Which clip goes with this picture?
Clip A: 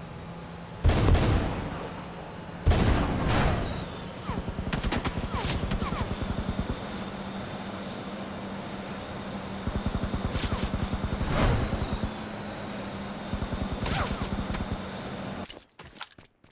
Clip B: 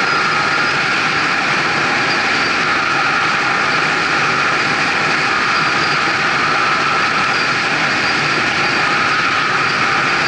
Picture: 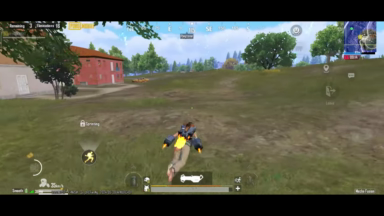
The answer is A